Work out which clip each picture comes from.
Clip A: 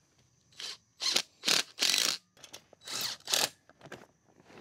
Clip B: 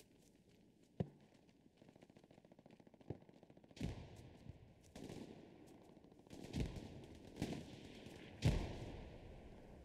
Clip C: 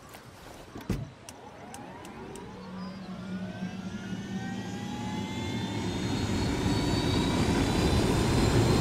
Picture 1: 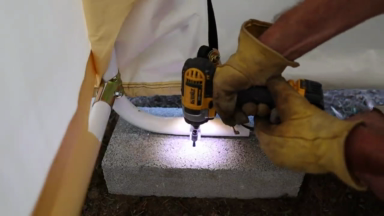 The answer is A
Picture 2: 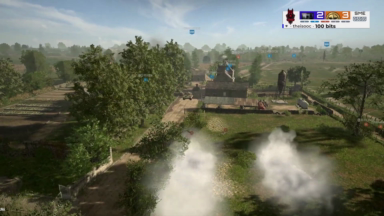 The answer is B